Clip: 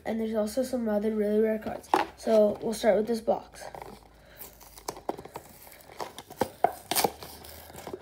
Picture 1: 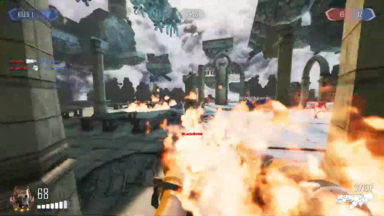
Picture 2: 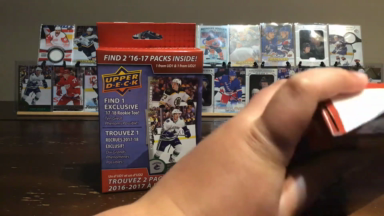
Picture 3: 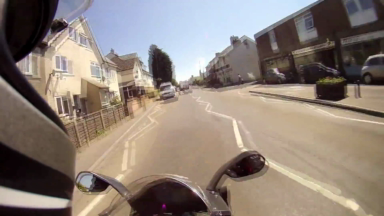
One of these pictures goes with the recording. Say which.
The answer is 2